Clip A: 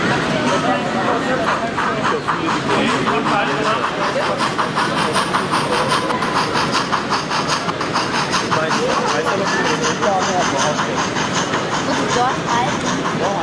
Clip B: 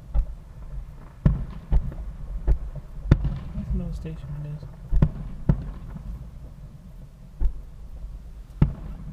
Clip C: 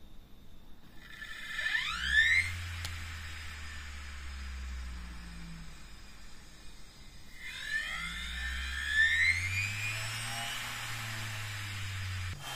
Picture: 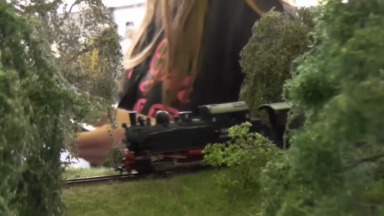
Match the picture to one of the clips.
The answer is A